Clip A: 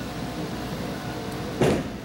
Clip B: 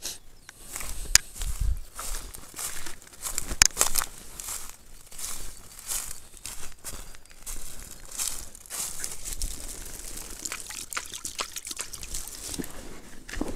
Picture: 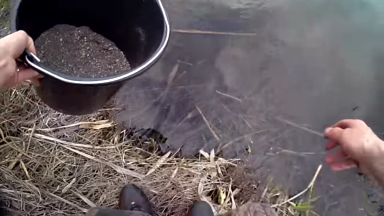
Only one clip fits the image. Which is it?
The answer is B